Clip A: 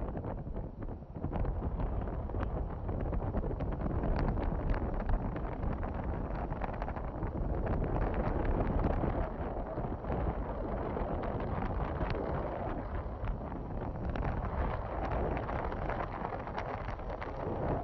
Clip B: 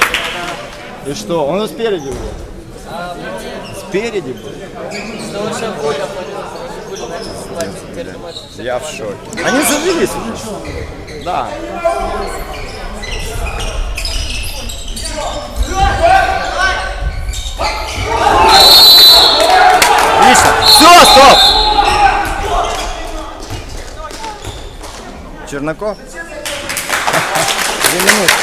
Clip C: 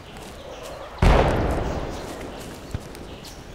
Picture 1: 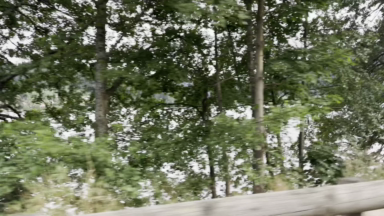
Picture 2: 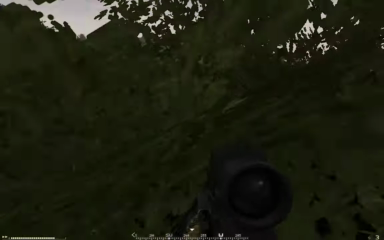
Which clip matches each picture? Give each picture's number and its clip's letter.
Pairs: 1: A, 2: C